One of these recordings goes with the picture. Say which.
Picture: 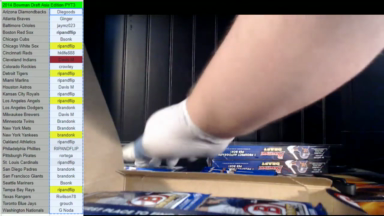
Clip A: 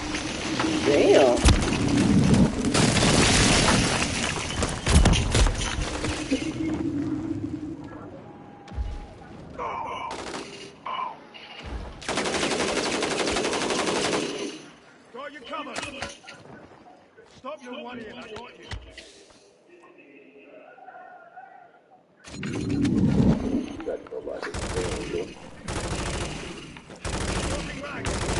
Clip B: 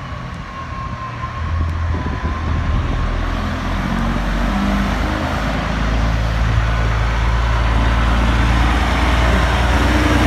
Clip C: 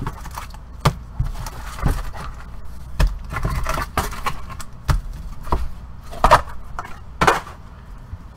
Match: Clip C